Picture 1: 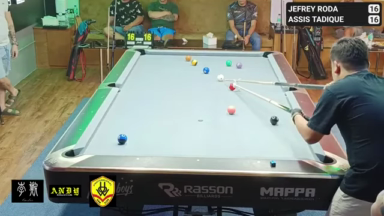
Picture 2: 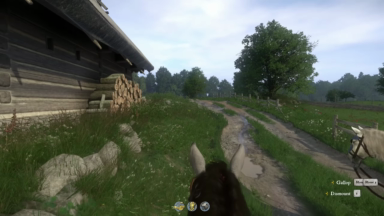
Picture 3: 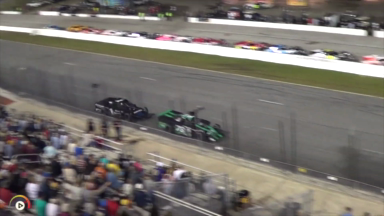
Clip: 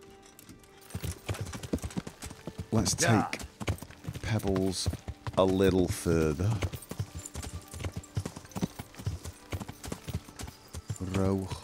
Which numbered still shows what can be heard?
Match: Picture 2